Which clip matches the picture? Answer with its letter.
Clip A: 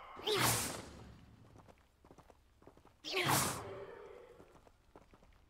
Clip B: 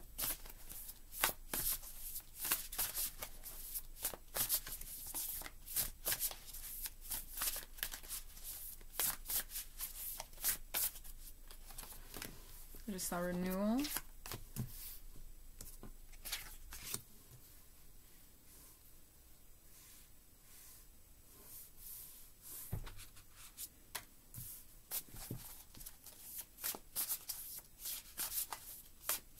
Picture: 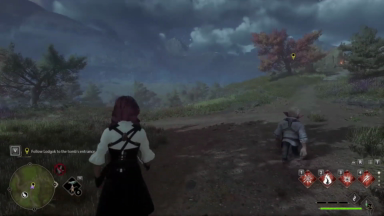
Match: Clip A